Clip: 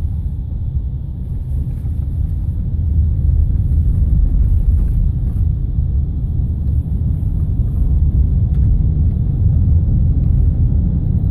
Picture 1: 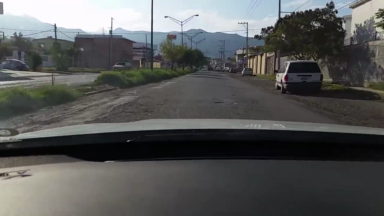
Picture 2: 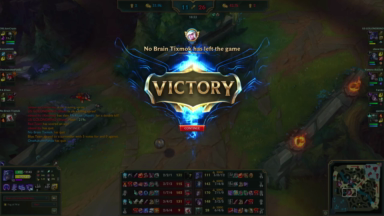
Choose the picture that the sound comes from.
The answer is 1